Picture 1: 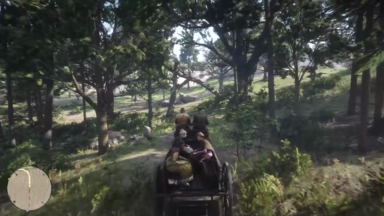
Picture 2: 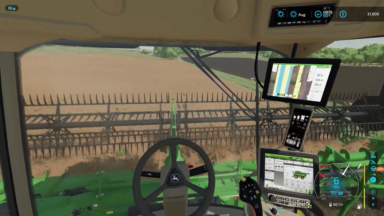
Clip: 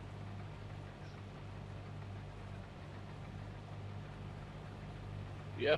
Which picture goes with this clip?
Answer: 2